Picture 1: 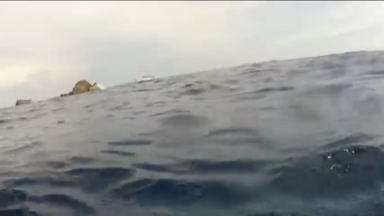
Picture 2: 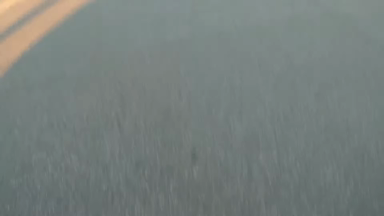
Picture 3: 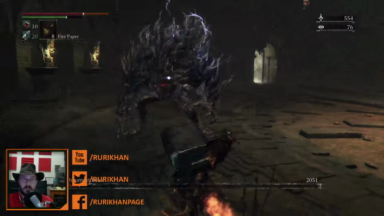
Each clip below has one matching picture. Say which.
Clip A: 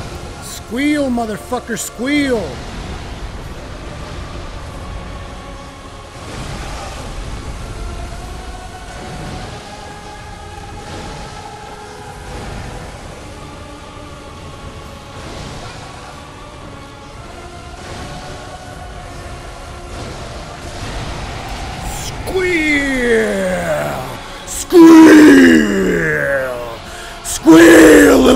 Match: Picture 3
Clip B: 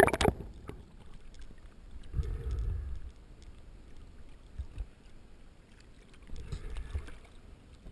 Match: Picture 1